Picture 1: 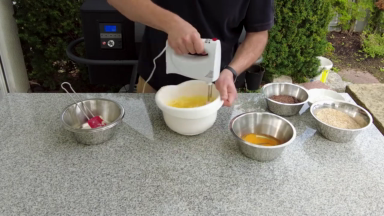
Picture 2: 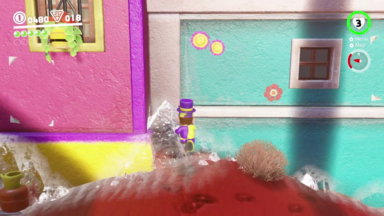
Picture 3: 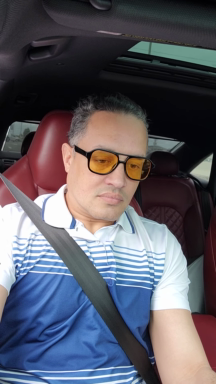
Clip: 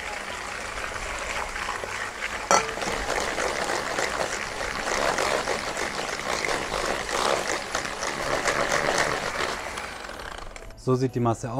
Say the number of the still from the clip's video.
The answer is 1